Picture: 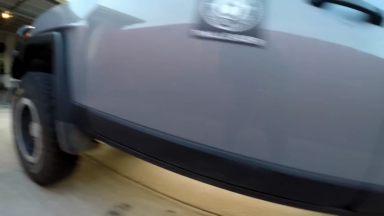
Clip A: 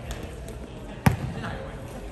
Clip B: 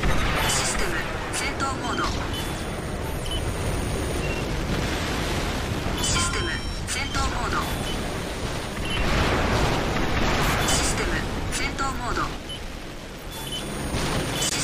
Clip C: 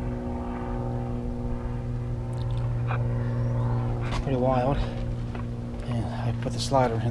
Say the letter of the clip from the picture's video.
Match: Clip C